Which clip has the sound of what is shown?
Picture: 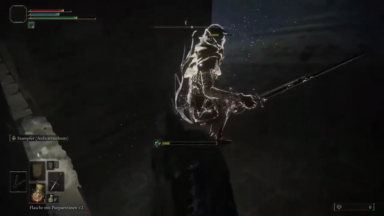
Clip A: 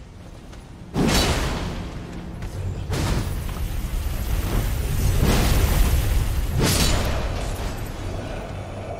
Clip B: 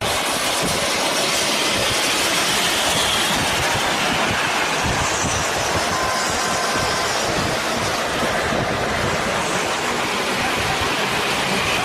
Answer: A